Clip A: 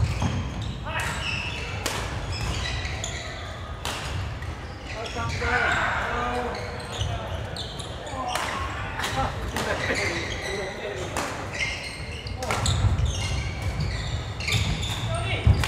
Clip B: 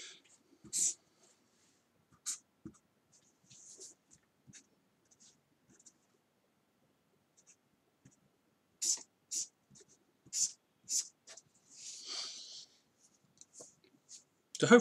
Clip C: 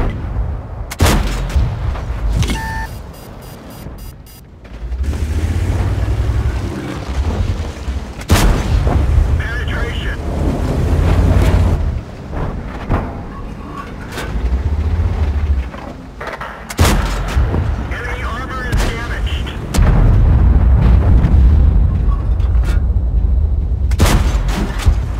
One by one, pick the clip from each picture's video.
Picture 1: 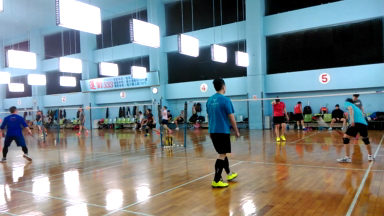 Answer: A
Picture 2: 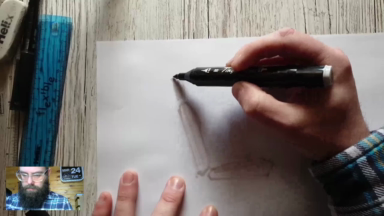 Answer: B